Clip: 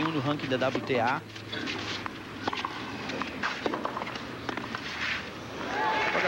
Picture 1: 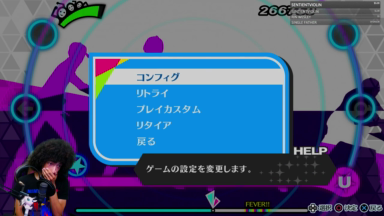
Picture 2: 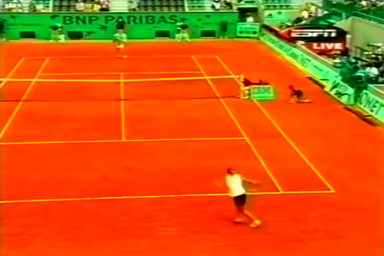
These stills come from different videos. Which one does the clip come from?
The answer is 2